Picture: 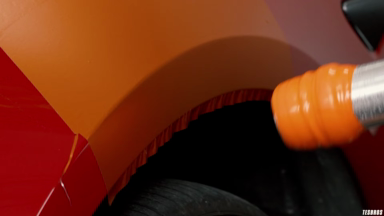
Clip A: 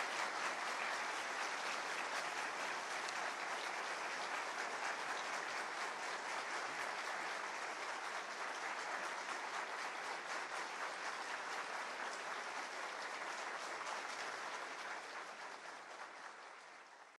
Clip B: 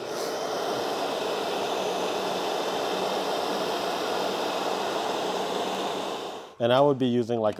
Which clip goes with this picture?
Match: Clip B